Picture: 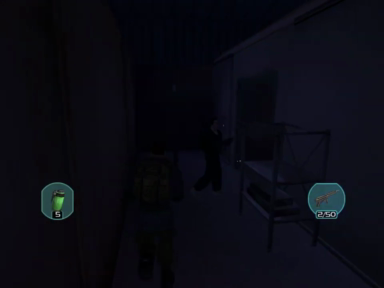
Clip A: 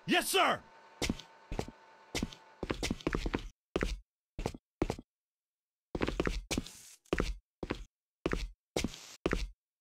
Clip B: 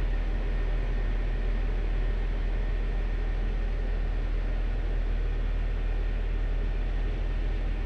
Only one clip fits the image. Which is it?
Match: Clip A